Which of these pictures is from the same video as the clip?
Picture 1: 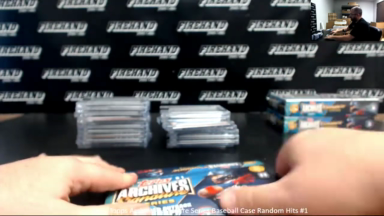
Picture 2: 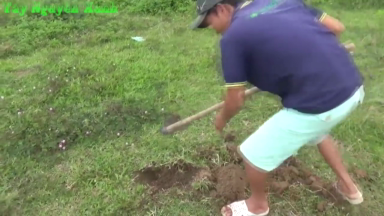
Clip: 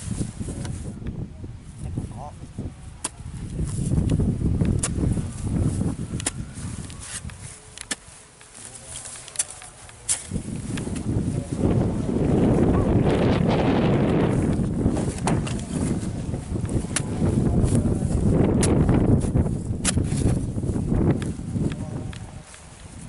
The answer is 2